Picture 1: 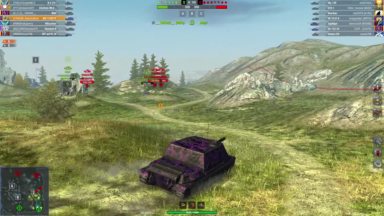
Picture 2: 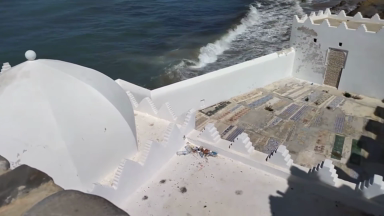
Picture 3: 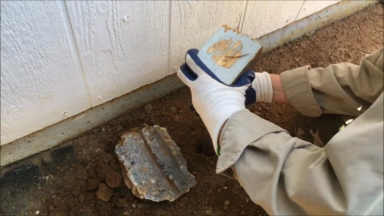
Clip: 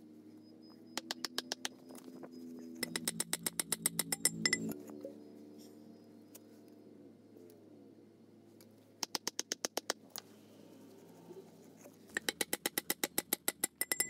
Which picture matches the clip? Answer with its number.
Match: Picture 3